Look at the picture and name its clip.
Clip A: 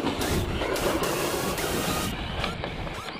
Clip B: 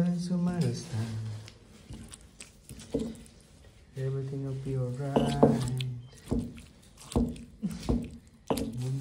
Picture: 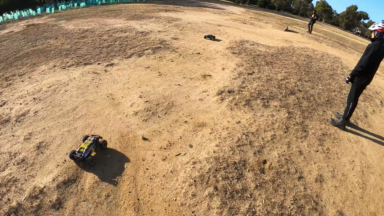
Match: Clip A